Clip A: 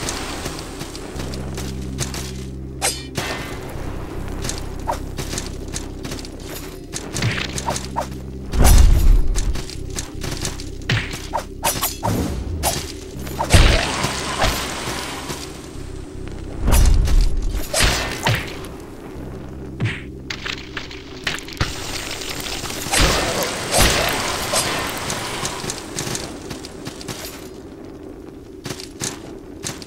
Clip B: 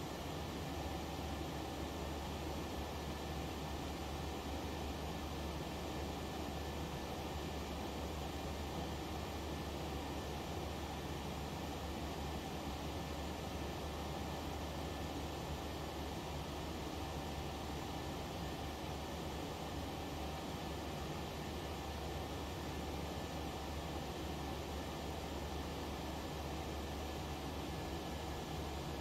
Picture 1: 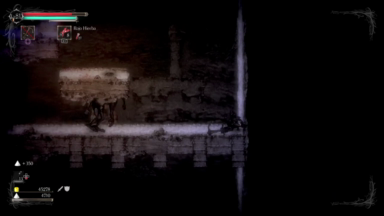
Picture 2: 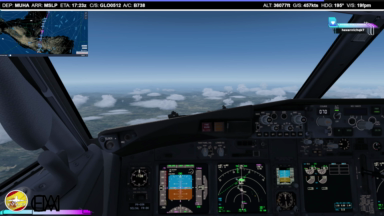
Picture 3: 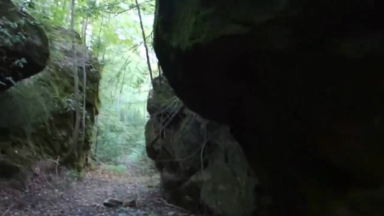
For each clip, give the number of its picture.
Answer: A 1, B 2